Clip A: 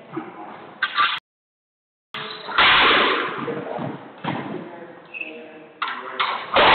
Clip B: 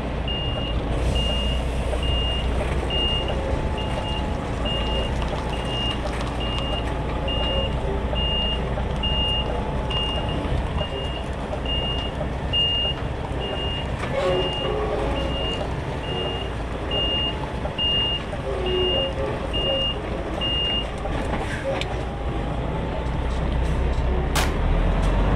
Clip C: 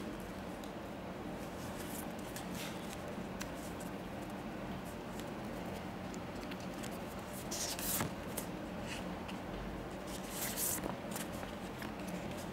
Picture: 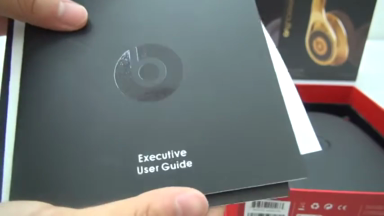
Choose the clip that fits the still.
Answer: C